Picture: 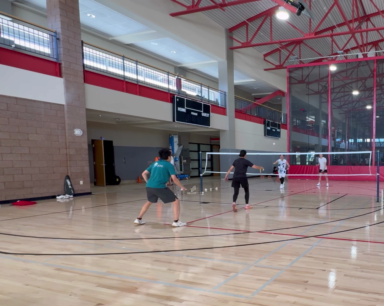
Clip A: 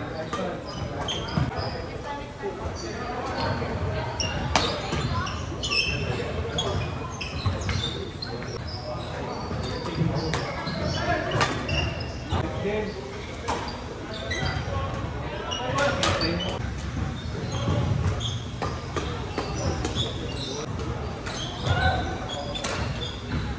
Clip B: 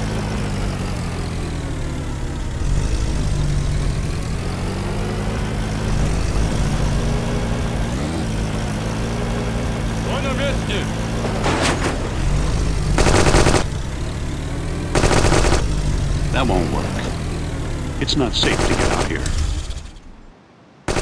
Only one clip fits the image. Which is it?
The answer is A